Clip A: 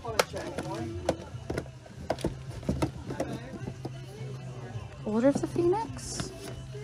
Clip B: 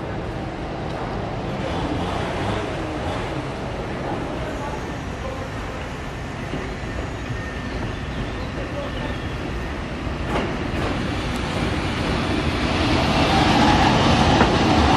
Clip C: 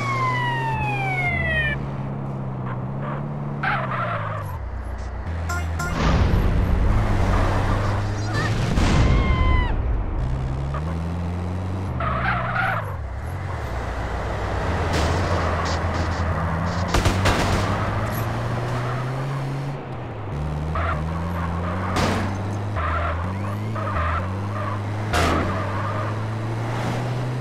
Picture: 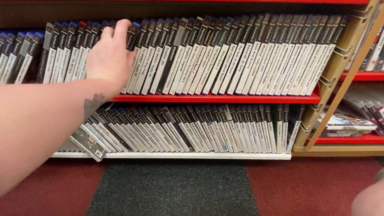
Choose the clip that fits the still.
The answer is A